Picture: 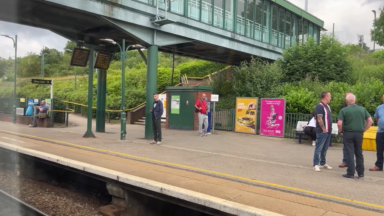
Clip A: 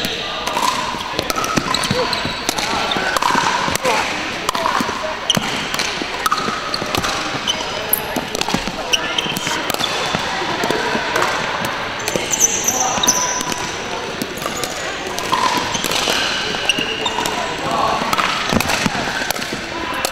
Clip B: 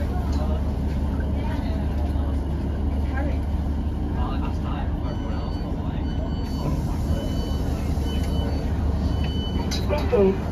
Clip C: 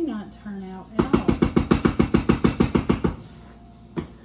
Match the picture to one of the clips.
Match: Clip B